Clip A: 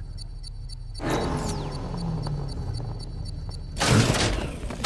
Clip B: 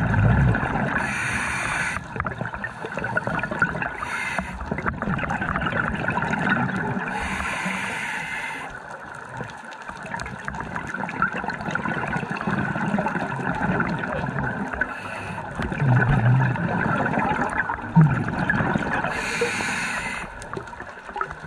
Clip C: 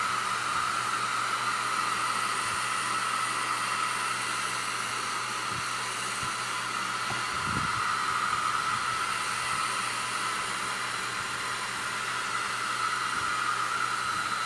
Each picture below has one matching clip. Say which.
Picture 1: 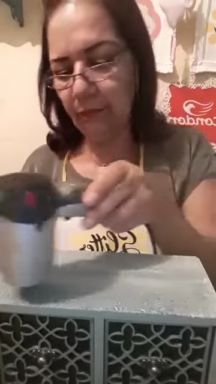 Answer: C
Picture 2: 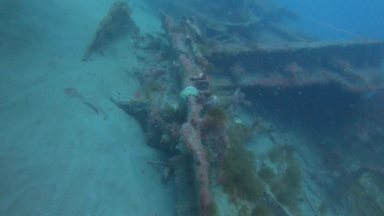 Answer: B